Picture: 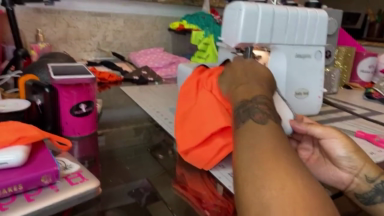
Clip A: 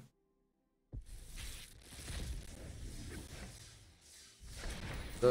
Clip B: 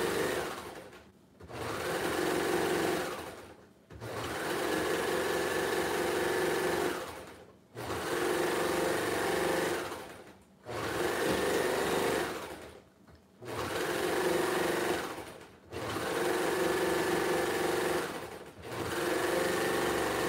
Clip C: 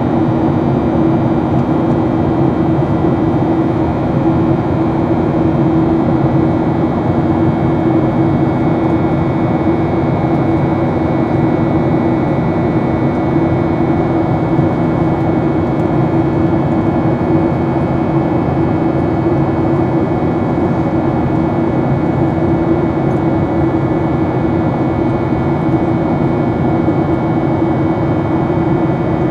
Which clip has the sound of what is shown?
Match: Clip B